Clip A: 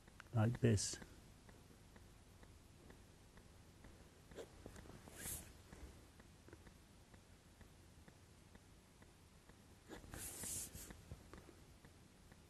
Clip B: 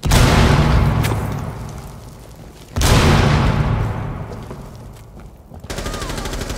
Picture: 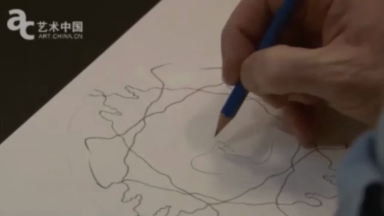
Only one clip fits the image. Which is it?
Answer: A